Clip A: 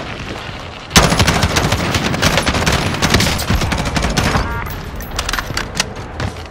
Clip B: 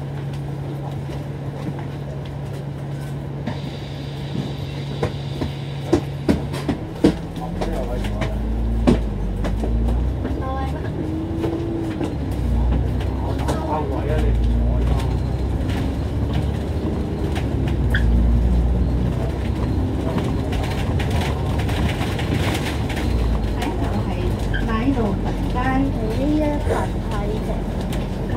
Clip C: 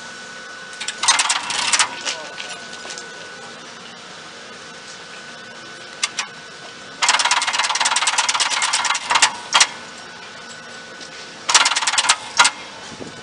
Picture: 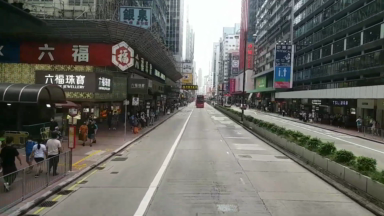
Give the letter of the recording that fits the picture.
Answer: B